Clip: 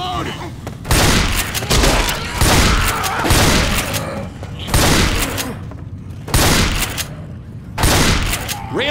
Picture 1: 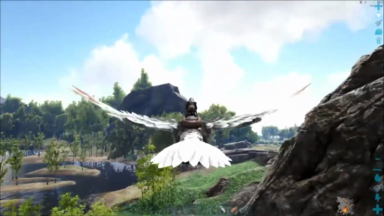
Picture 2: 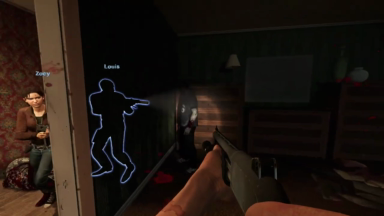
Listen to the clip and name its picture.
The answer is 2